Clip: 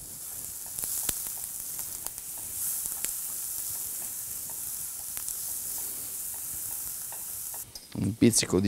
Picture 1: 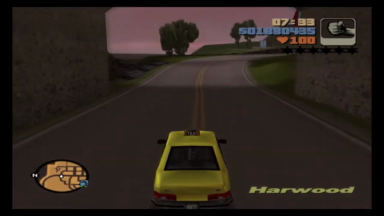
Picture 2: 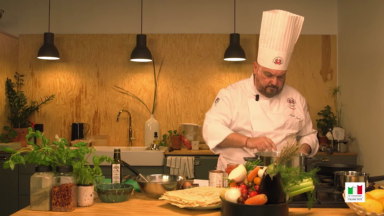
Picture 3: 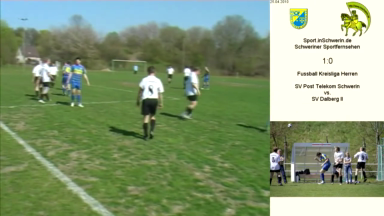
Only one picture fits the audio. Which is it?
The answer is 2